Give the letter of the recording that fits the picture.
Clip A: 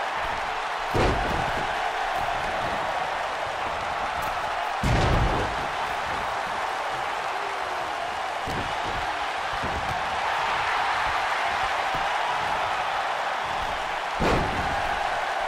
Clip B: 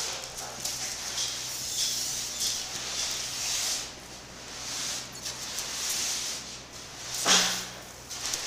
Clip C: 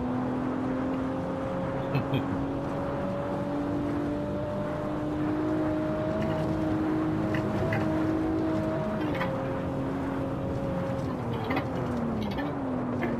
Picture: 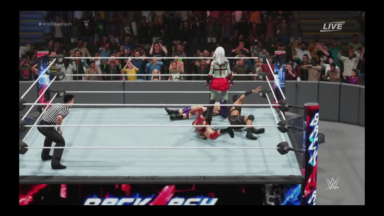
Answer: A